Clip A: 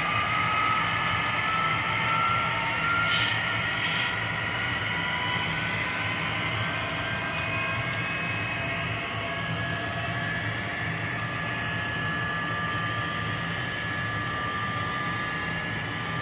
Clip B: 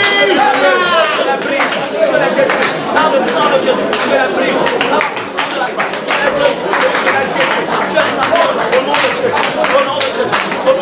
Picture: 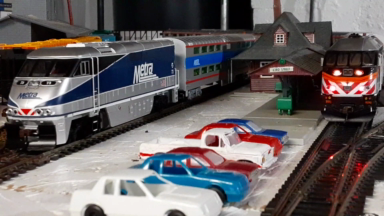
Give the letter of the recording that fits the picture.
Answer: A